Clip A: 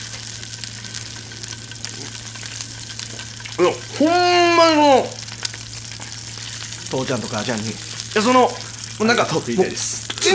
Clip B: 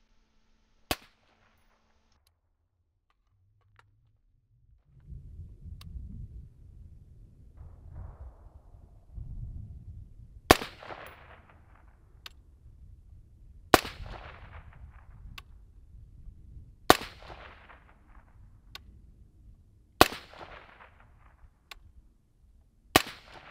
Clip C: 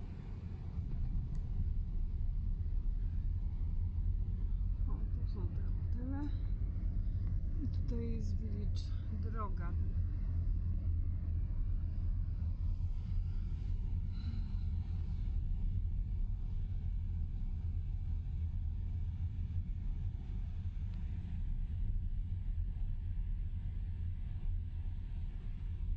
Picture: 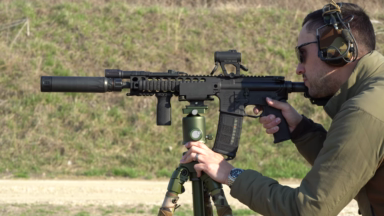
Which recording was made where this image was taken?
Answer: B